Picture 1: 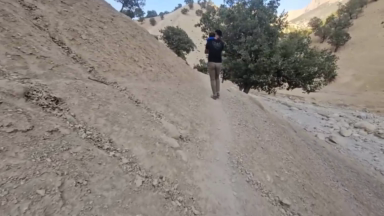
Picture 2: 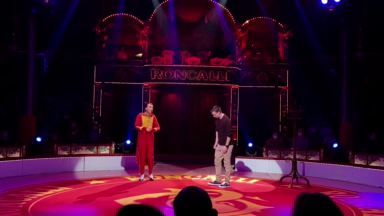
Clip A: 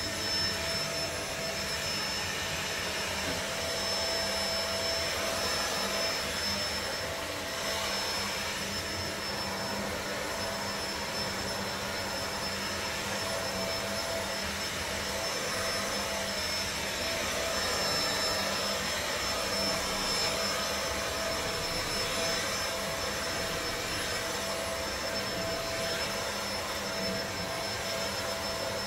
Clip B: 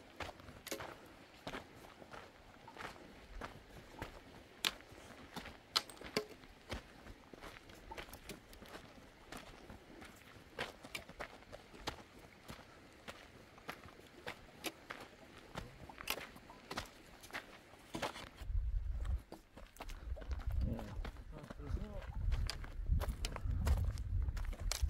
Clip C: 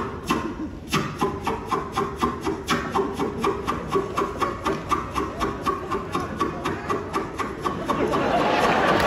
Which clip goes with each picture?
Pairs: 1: B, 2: C